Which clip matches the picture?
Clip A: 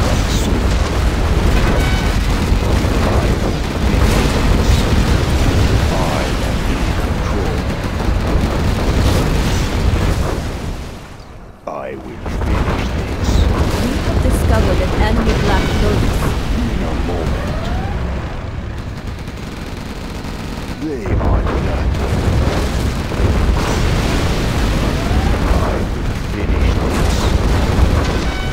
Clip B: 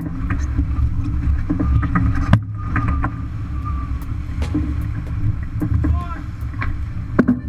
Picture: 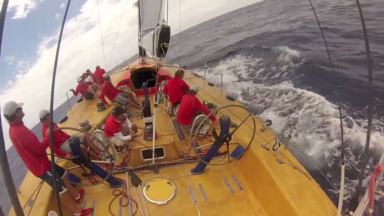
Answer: B